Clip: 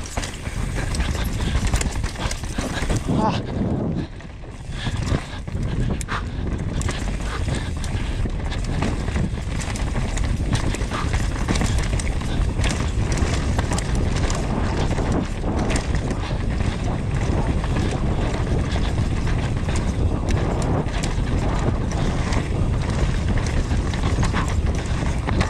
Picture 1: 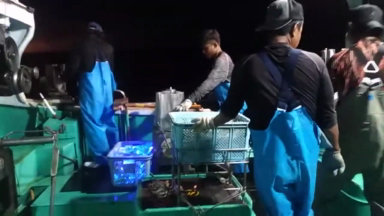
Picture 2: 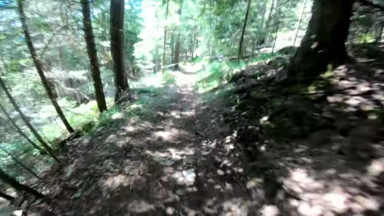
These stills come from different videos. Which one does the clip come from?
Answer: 2